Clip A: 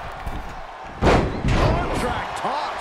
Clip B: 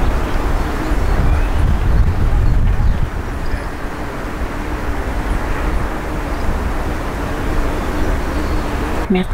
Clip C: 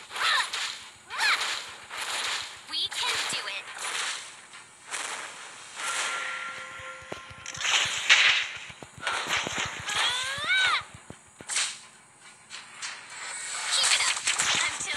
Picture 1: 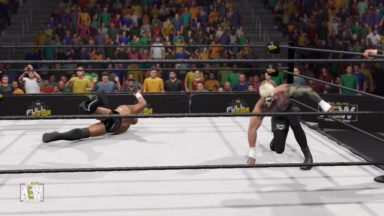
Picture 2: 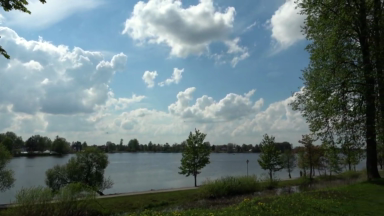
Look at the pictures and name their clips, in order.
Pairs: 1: A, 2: B